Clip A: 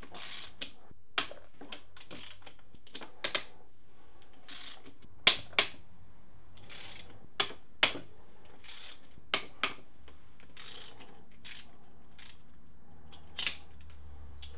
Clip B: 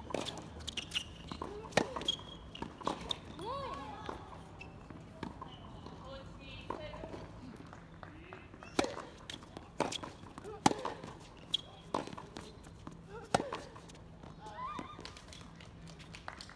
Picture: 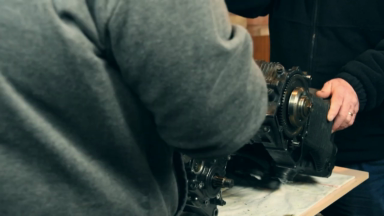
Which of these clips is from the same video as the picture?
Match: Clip A